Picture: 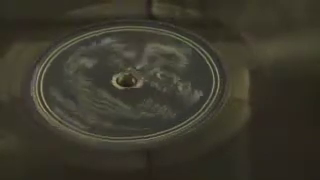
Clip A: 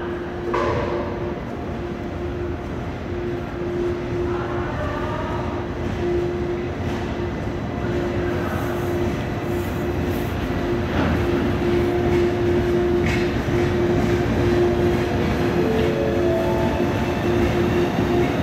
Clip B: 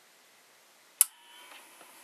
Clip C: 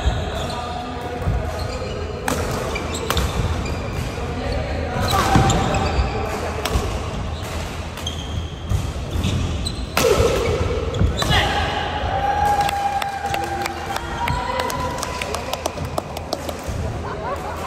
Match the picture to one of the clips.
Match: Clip B